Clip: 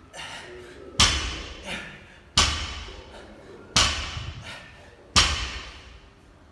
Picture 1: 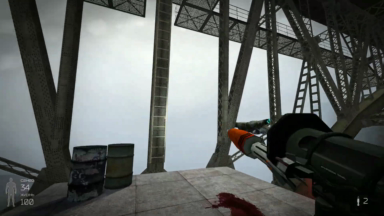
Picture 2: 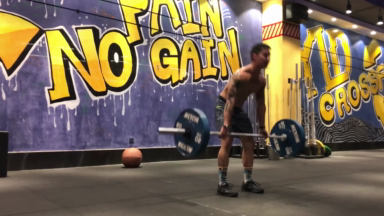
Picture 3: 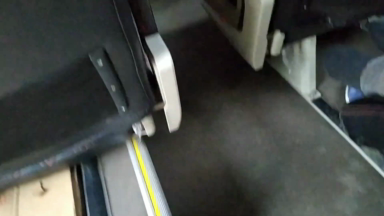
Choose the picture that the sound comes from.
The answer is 2